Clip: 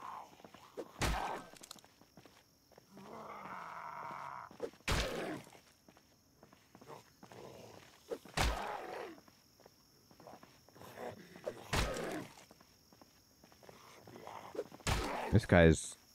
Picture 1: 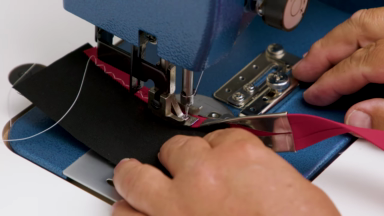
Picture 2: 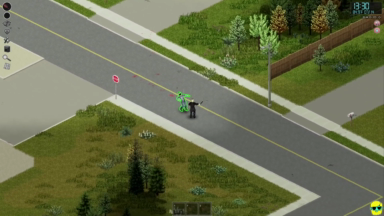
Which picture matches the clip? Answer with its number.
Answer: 2